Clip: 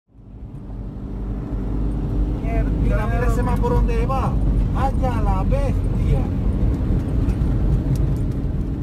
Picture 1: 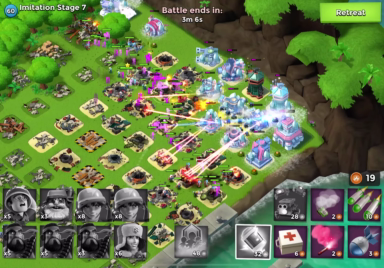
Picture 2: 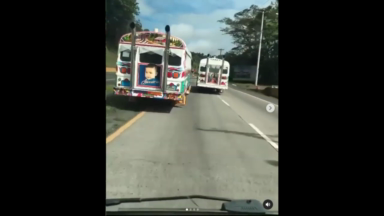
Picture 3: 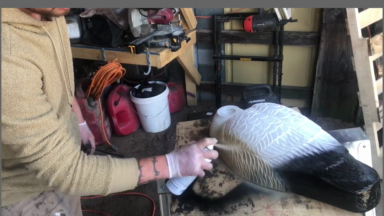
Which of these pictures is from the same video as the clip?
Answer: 2